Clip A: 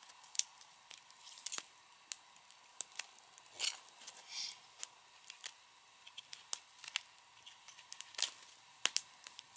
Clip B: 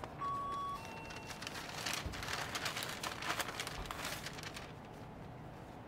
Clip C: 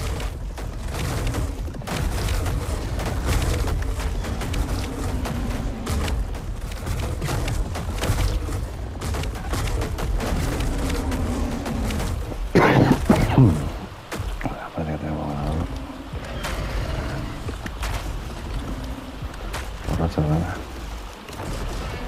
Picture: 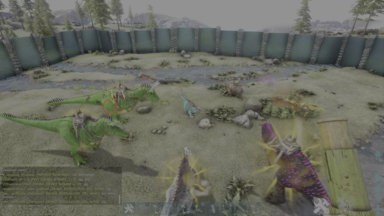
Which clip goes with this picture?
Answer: C